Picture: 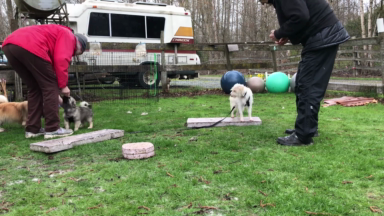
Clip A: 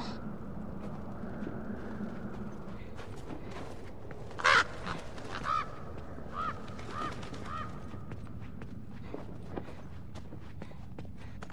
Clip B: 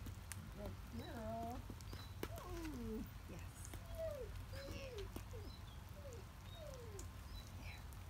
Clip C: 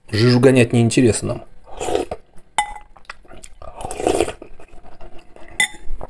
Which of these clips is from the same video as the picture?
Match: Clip B